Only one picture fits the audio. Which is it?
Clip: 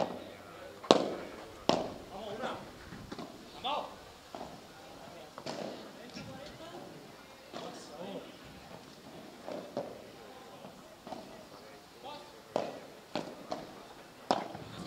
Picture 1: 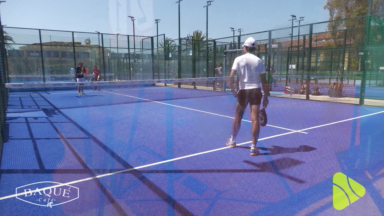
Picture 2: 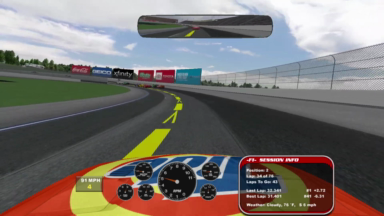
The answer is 1